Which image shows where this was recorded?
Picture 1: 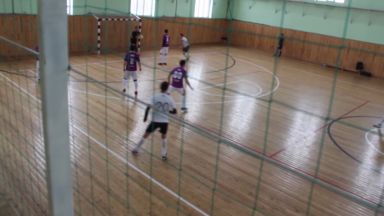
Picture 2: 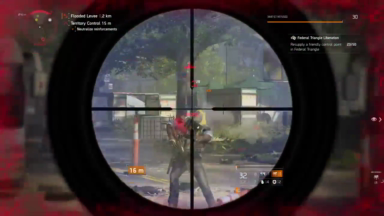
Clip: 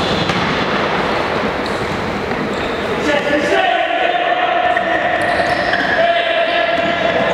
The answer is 1